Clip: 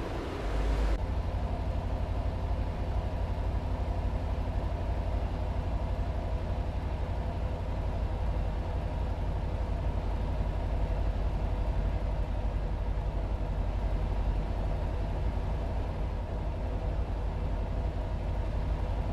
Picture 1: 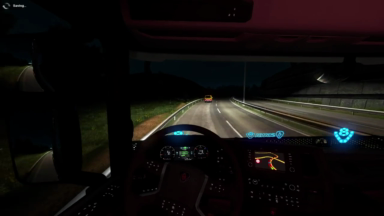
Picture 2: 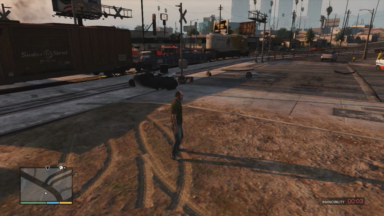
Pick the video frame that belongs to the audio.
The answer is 1